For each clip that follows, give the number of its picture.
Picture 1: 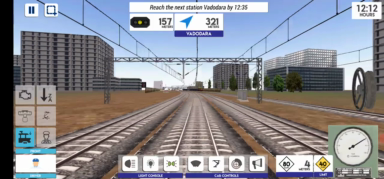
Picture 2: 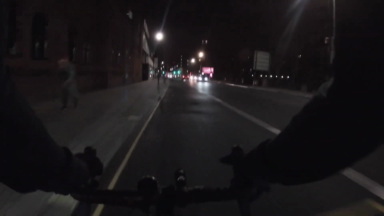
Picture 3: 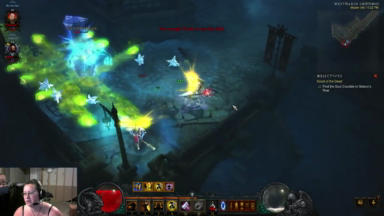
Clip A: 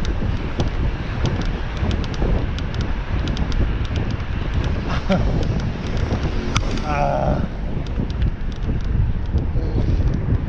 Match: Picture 2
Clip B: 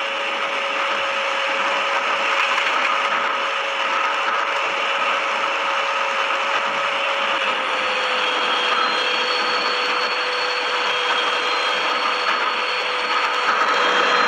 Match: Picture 1